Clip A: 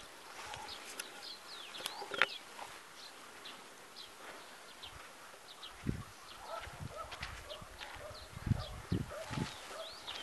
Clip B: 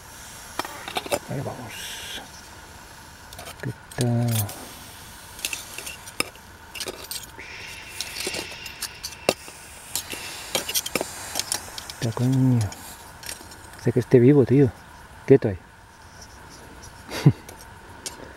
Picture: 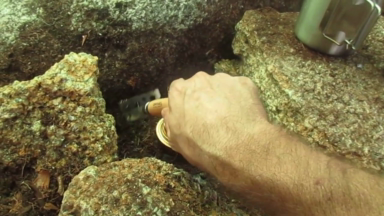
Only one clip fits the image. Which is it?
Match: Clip B